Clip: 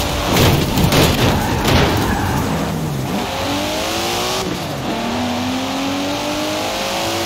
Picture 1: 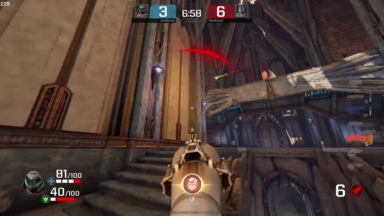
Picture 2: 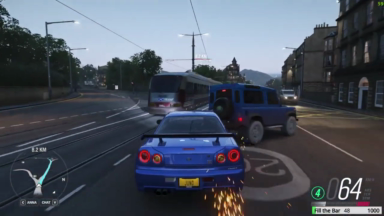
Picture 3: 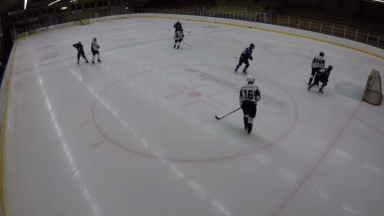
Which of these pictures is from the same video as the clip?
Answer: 2